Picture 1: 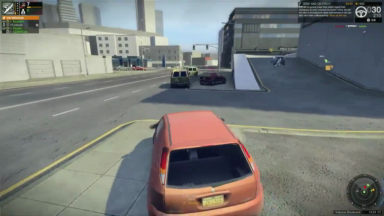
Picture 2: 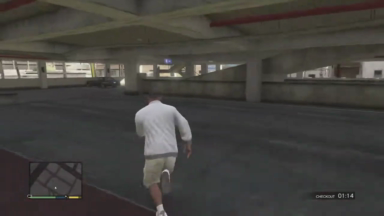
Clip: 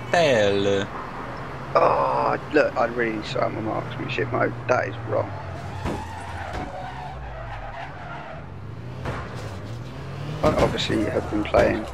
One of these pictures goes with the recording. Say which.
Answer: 1